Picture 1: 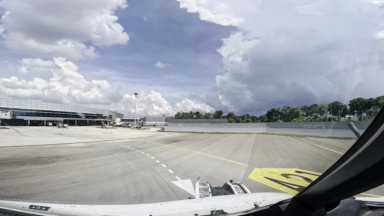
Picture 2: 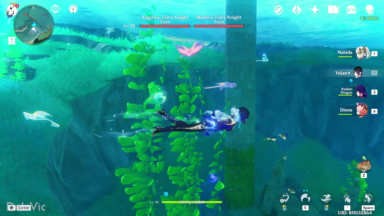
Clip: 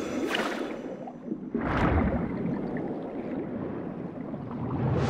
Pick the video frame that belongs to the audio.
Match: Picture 2